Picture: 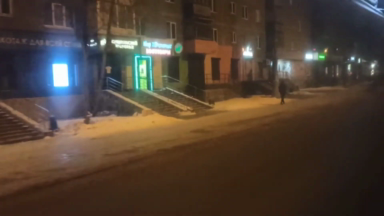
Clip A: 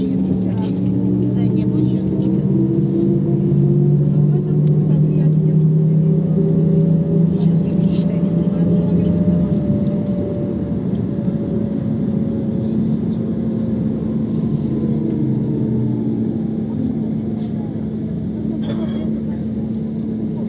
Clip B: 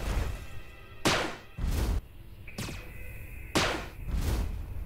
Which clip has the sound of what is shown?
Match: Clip A